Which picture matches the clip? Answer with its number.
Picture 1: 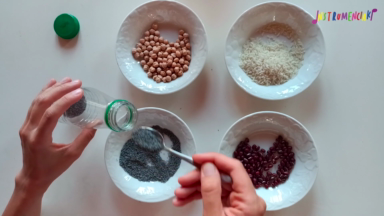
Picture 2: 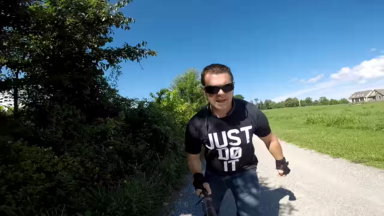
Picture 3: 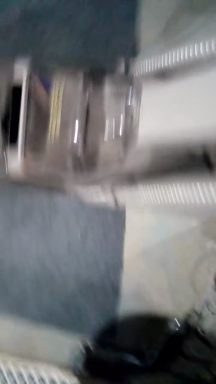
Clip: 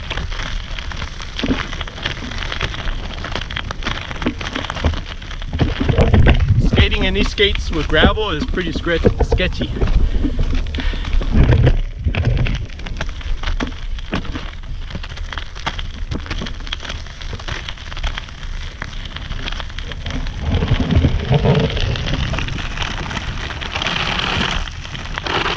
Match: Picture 2